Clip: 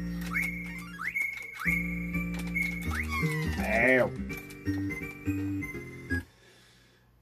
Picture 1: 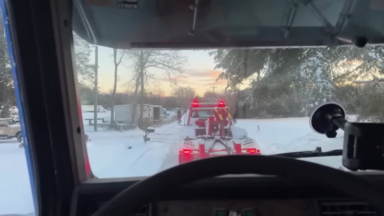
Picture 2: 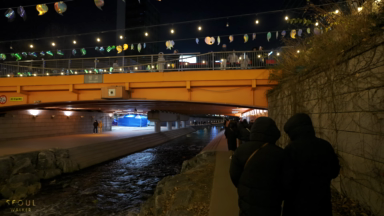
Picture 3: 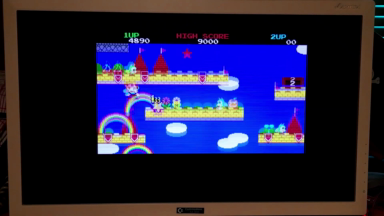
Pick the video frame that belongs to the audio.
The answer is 3